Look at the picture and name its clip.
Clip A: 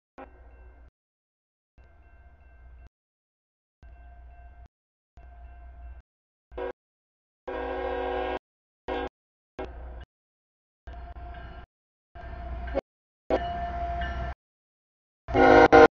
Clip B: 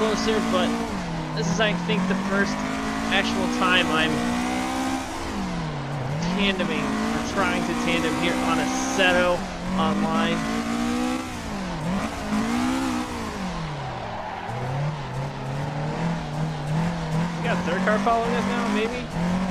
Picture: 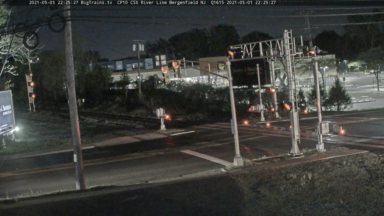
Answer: A